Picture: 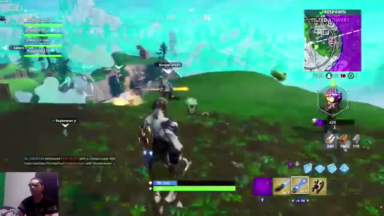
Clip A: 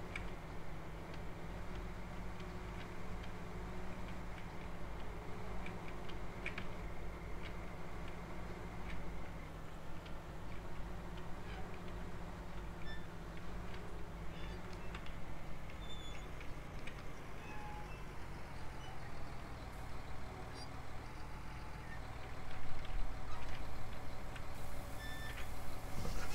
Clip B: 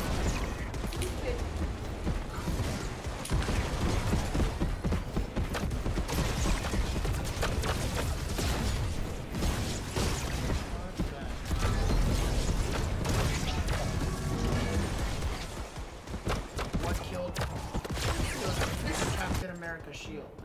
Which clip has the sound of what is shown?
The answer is B